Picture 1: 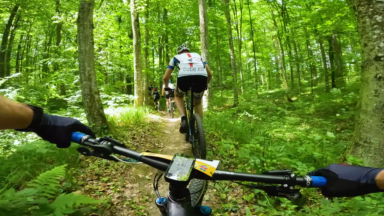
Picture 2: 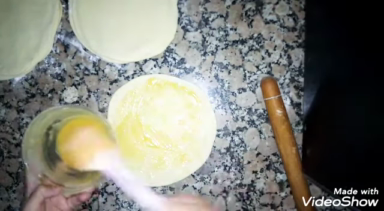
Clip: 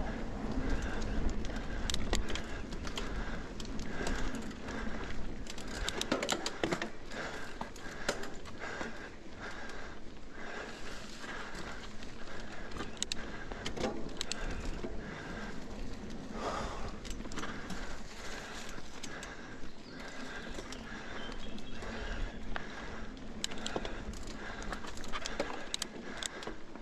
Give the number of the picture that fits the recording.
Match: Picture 1